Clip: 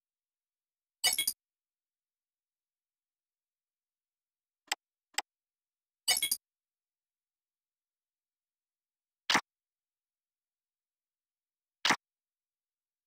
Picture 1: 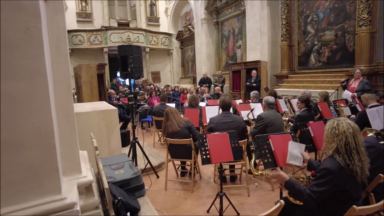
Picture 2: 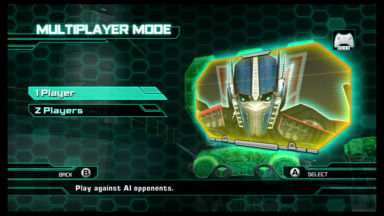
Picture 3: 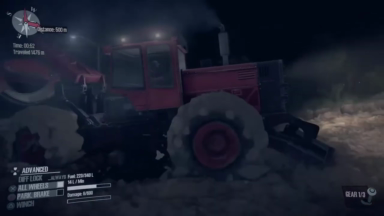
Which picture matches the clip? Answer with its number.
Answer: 2